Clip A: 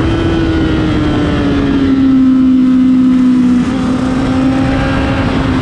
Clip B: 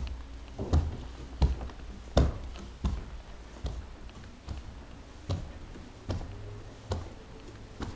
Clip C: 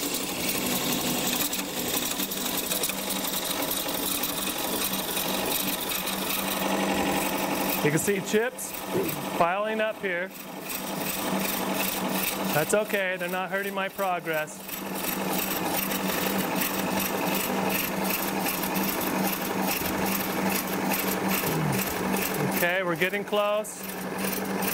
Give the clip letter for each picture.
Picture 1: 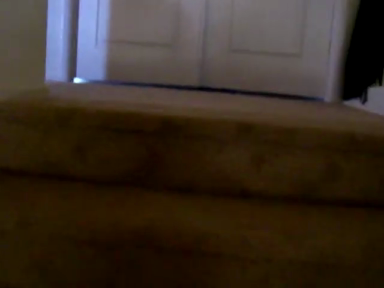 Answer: B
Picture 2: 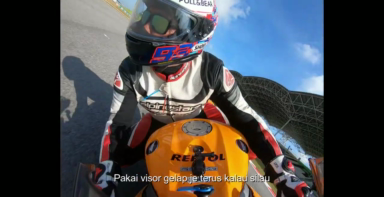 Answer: A